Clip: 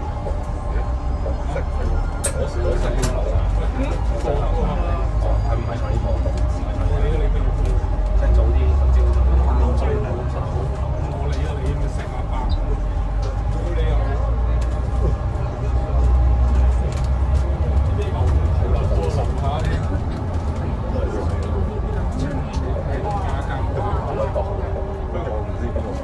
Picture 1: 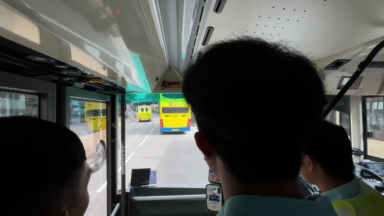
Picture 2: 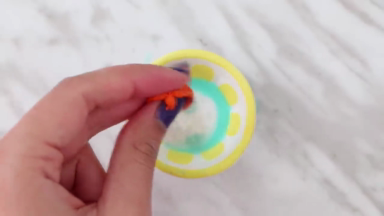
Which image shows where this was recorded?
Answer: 1